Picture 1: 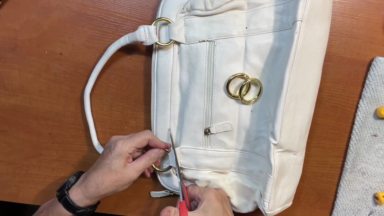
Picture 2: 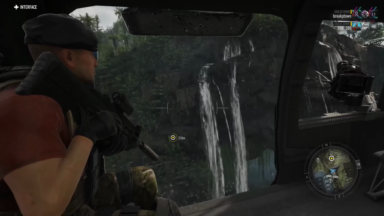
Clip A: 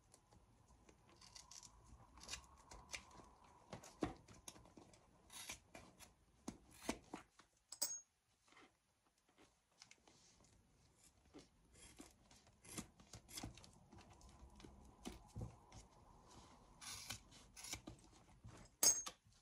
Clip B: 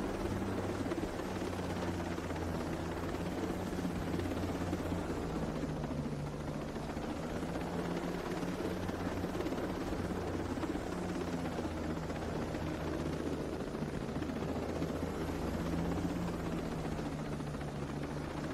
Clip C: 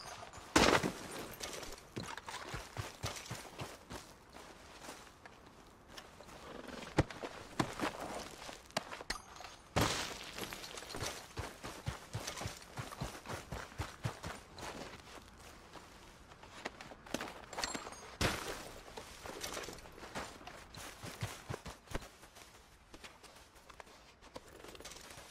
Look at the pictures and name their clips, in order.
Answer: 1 A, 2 B